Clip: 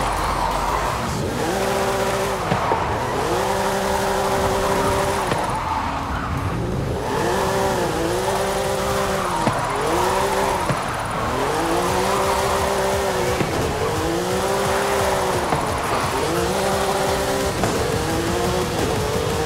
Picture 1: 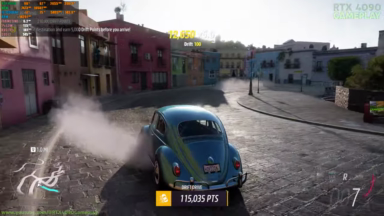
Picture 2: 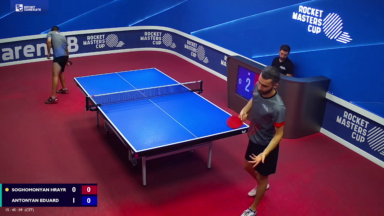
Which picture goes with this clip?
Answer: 1